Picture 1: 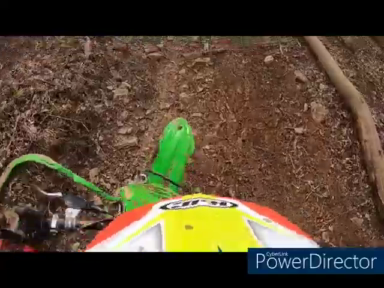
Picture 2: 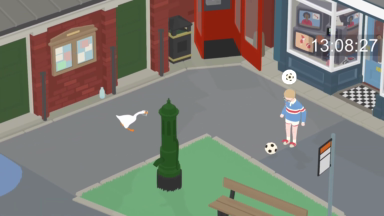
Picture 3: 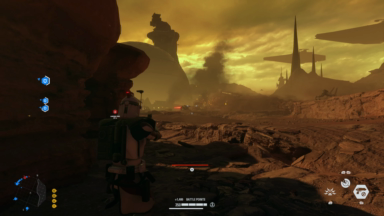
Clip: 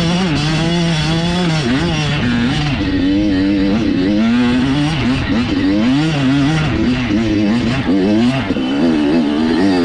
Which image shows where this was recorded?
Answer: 1